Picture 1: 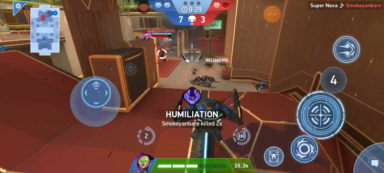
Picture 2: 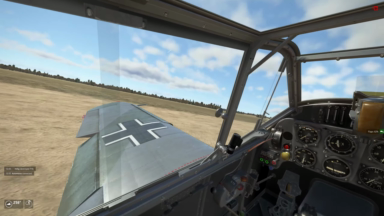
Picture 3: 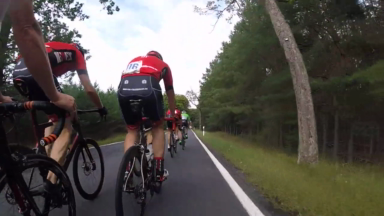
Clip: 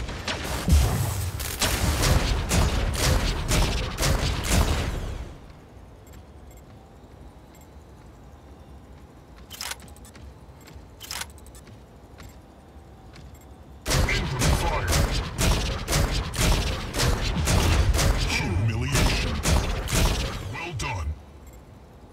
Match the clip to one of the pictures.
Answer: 1